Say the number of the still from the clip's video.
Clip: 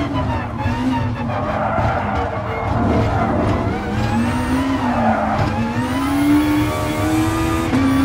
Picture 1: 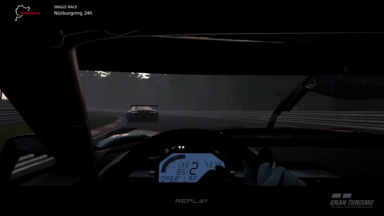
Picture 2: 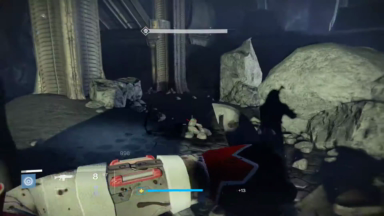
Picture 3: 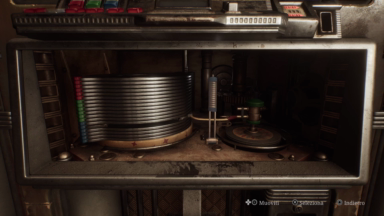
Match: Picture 1